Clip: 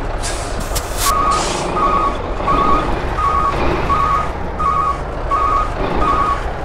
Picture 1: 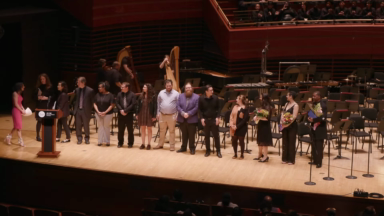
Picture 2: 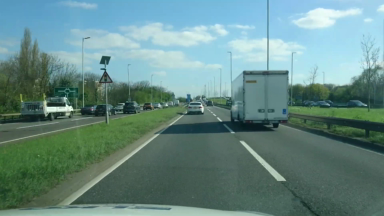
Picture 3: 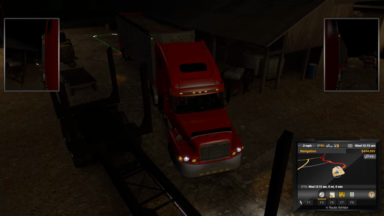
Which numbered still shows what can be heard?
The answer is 3